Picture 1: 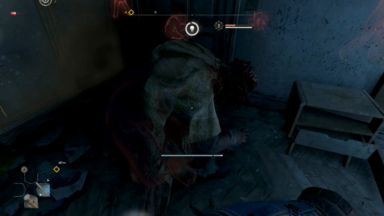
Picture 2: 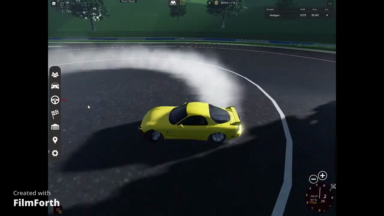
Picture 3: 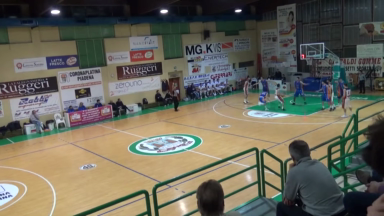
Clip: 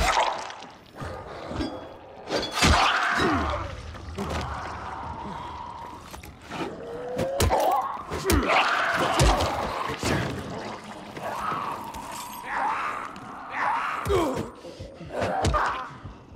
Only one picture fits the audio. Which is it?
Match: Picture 1